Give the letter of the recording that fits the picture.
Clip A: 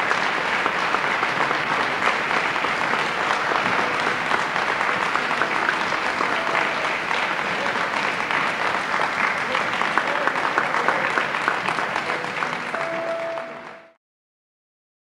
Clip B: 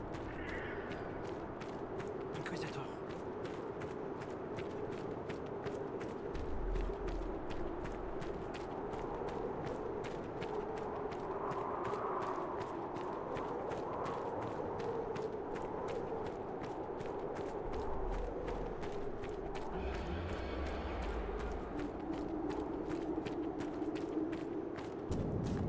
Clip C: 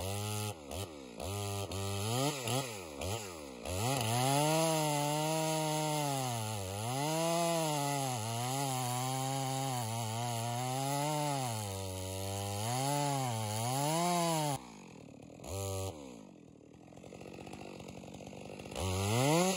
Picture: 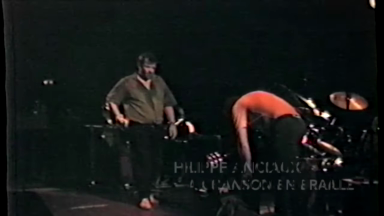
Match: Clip A